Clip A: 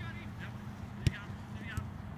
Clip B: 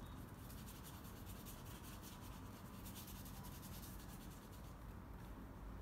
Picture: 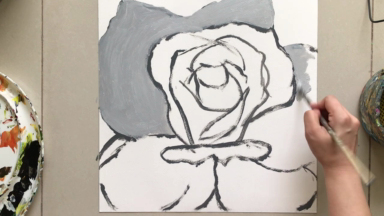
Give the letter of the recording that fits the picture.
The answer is B